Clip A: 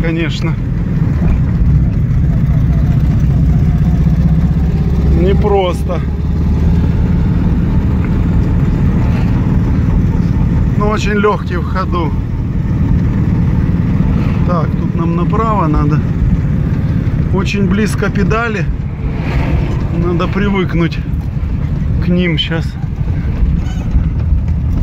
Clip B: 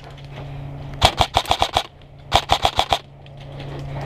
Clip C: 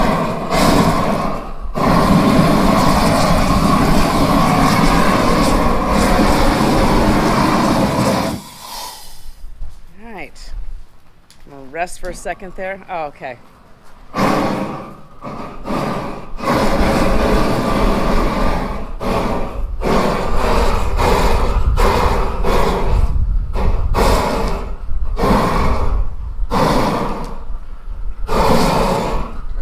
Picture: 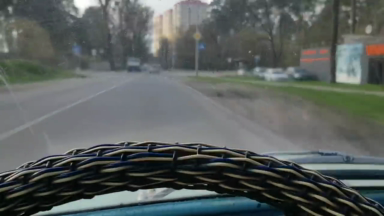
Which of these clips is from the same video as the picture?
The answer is A